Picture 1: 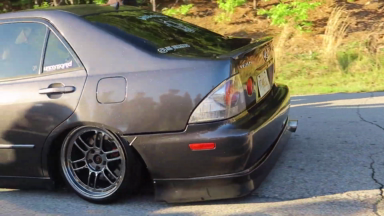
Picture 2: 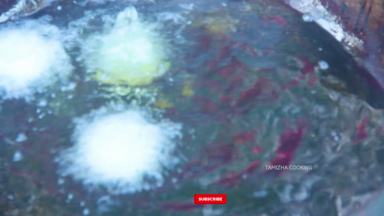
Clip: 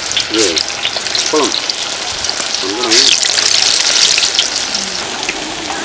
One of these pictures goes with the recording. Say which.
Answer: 2